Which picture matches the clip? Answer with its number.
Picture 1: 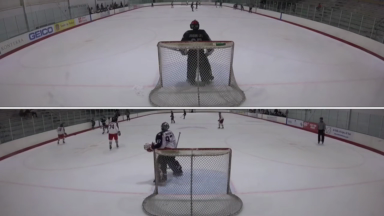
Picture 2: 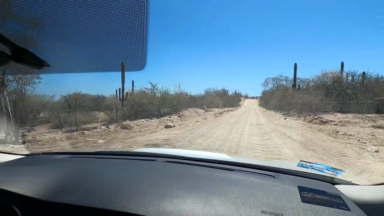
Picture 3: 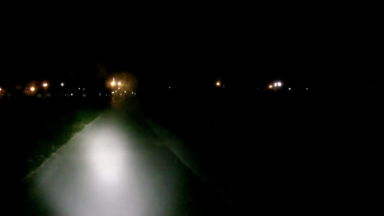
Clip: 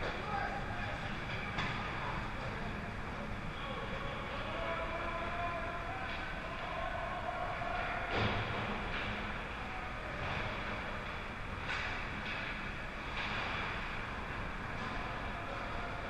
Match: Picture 1